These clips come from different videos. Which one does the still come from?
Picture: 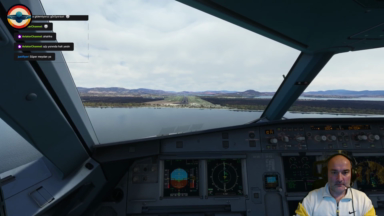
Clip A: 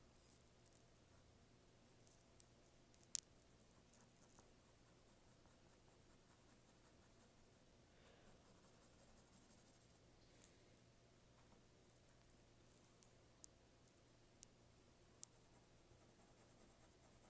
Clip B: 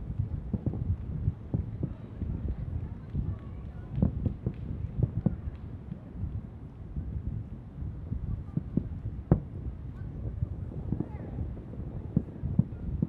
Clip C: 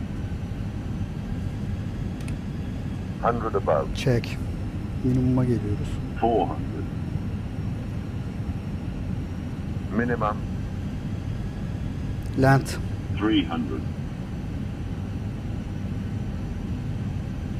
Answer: C